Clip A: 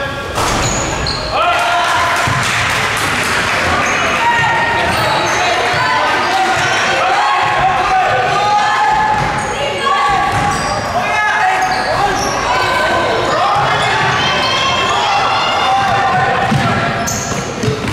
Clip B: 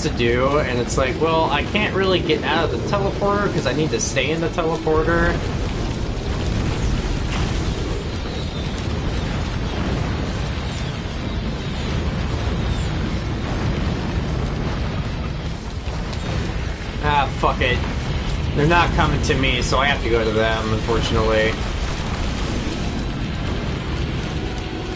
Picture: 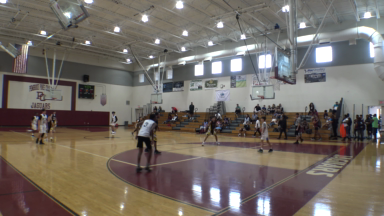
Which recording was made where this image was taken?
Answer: A